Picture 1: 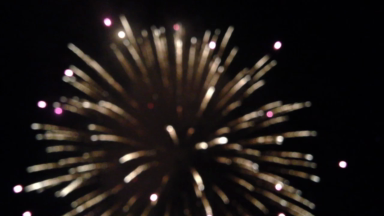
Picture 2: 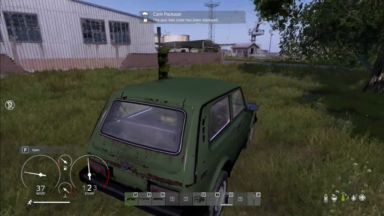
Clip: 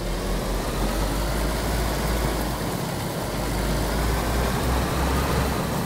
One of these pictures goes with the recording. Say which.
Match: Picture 2